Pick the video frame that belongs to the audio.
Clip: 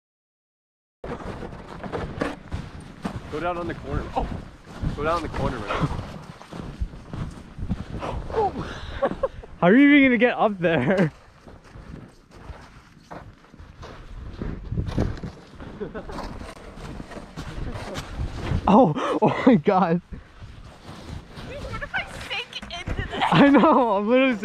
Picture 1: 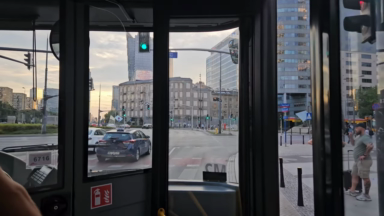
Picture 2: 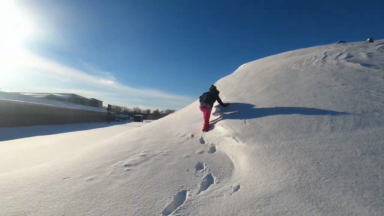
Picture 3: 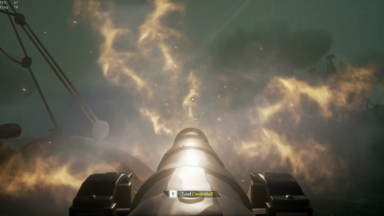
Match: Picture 2